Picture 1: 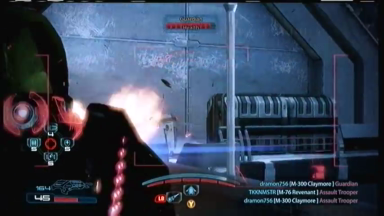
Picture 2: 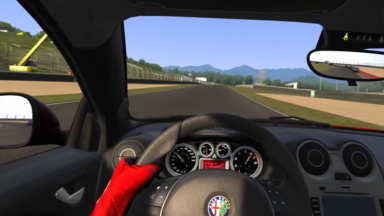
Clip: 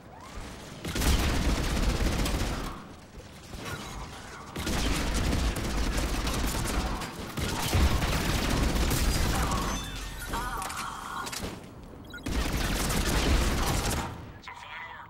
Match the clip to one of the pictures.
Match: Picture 1